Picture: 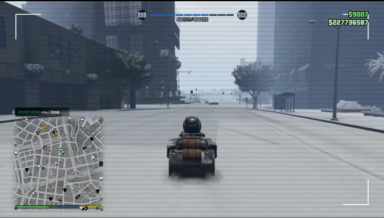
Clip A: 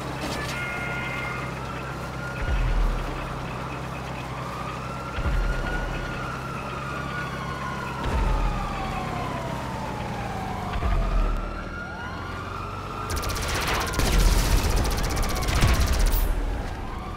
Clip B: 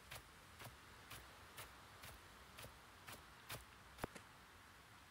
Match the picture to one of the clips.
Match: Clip A